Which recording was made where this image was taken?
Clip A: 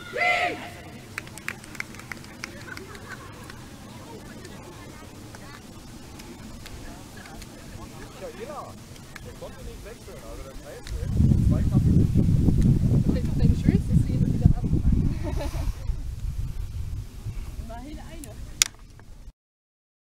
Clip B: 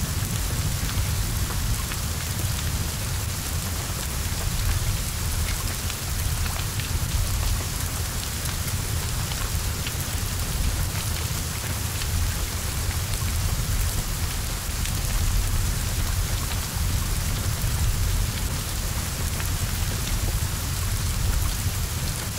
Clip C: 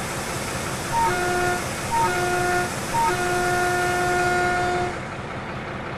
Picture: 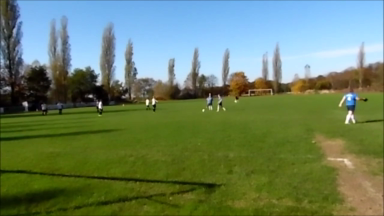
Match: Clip A